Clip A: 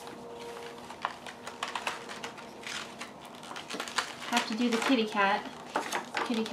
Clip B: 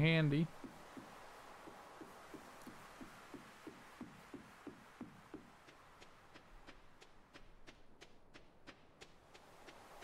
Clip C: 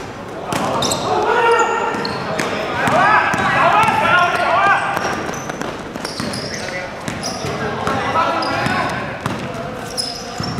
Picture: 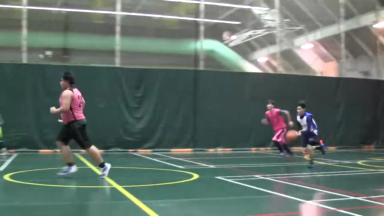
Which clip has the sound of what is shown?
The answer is C